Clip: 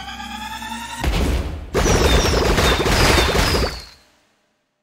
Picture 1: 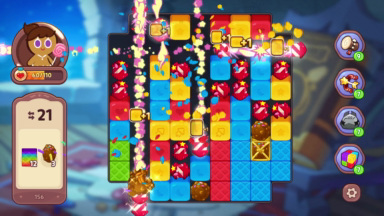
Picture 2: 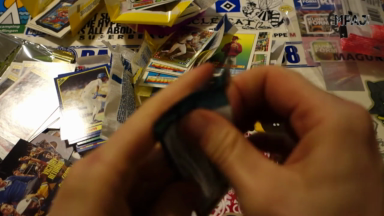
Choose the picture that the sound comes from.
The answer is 1